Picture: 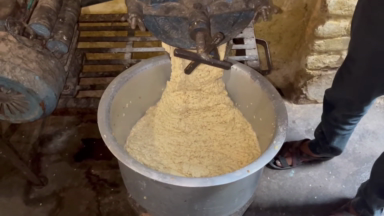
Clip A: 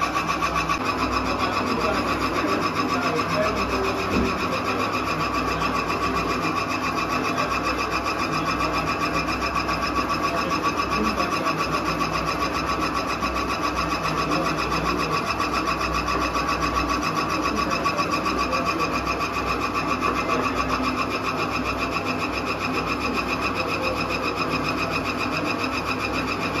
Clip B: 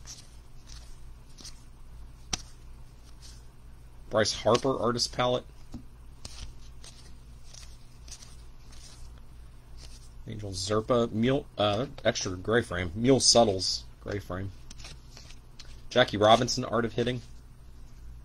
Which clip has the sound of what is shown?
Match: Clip A